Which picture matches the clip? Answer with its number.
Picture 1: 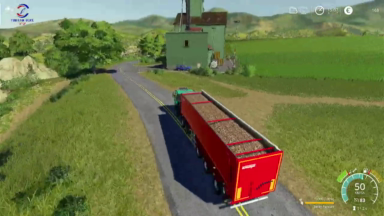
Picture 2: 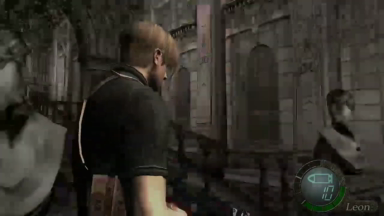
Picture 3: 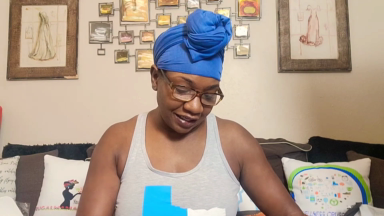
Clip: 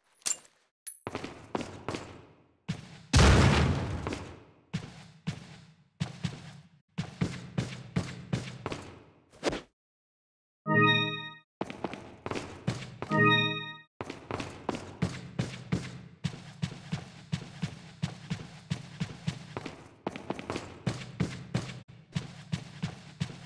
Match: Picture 2